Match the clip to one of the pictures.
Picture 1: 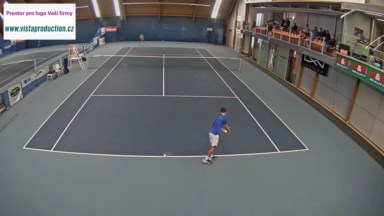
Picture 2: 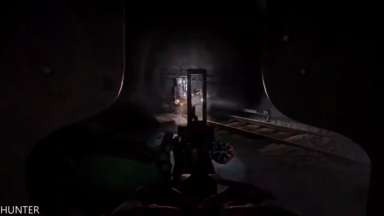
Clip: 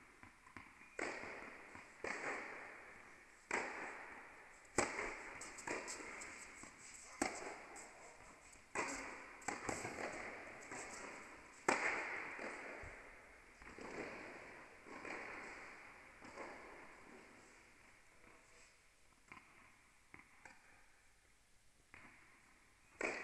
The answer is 1